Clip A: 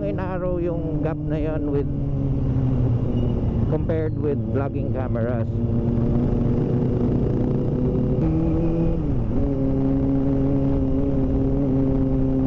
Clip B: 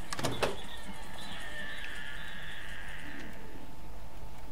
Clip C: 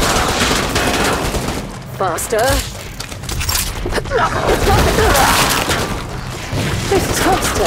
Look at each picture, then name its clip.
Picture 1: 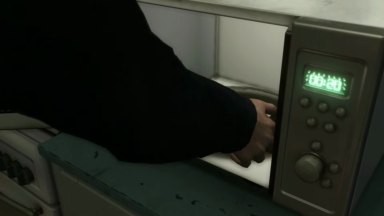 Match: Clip B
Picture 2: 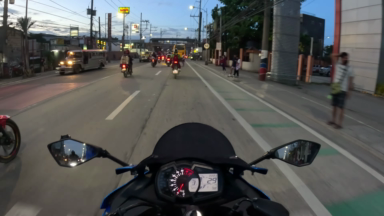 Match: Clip A